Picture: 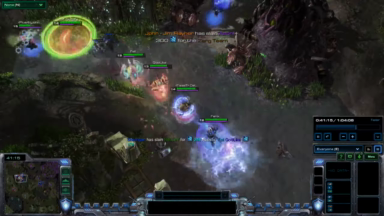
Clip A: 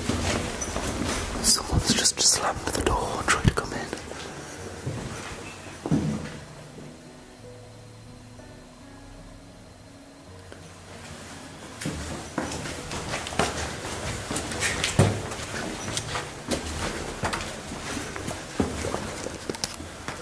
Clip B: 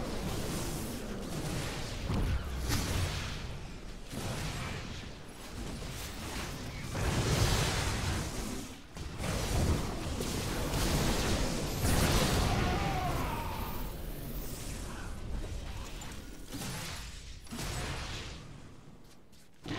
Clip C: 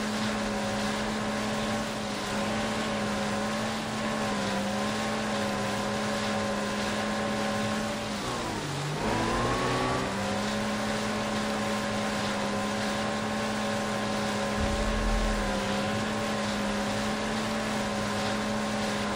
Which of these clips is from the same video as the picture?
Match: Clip B